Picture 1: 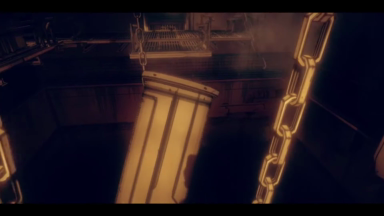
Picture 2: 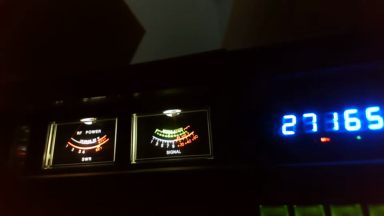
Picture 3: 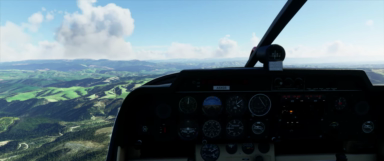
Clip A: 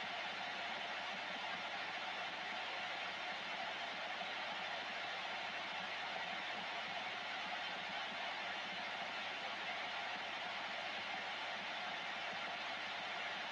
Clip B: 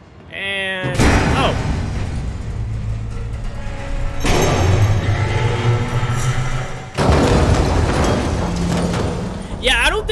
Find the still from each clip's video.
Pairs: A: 2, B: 1